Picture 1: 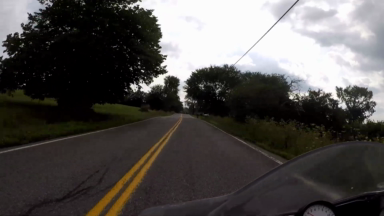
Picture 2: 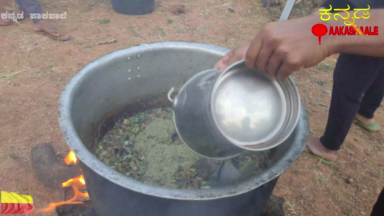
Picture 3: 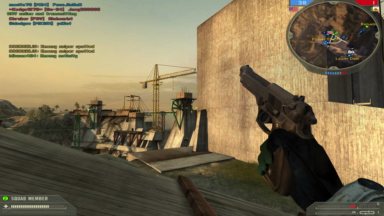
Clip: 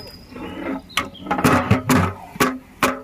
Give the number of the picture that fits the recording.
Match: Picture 2